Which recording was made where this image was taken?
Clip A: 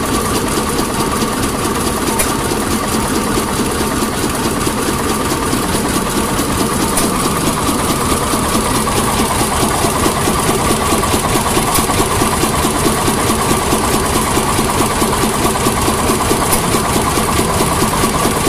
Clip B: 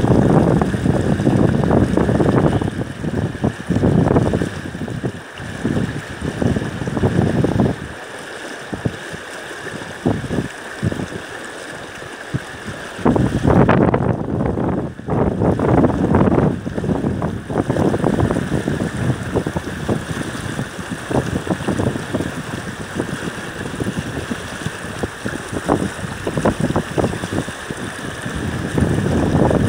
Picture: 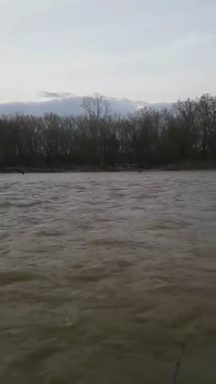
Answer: B